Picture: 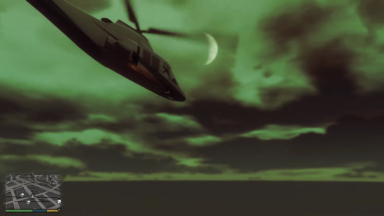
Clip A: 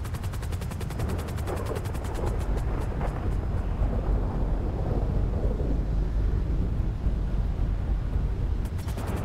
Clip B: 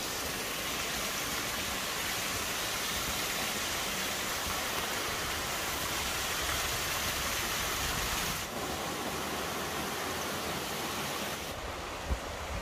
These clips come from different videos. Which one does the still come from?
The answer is A